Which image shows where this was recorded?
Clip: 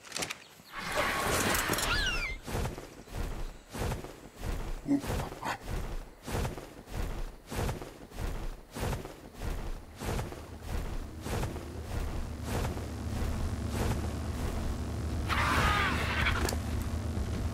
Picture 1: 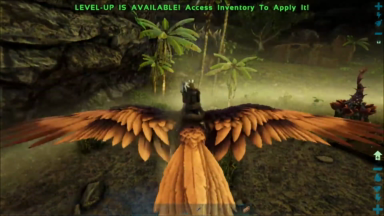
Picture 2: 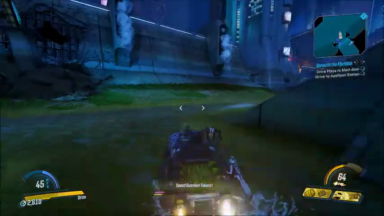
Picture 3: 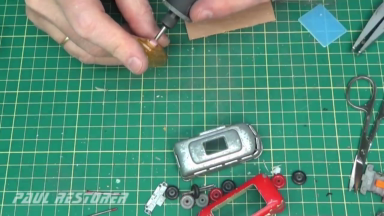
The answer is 1